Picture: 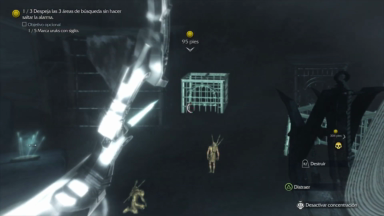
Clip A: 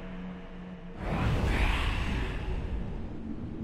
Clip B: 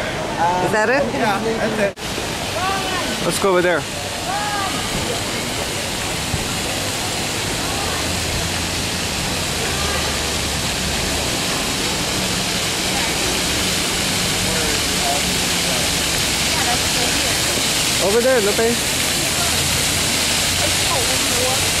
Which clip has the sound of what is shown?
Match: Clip A